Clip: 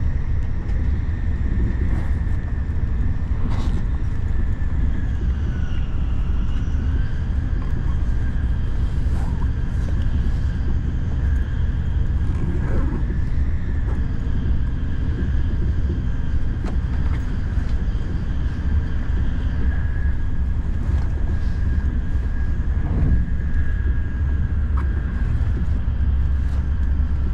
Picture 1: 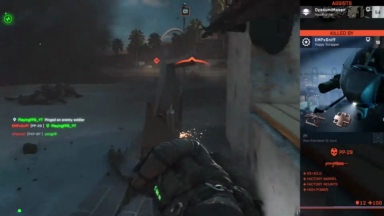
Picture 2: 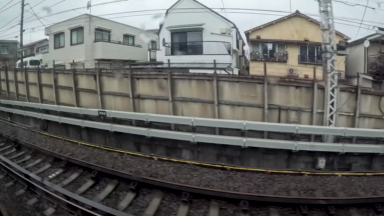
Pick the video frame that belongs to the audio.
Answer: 2